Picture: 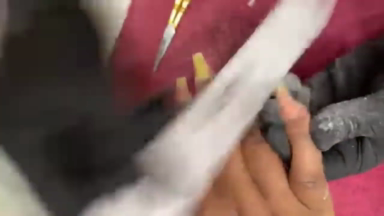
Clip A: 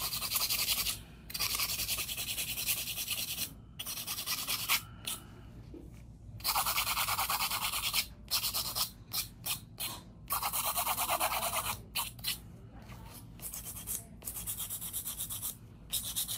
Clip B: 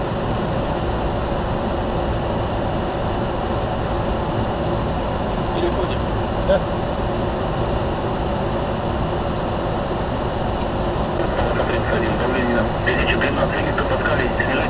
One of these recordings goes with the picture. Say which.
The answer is A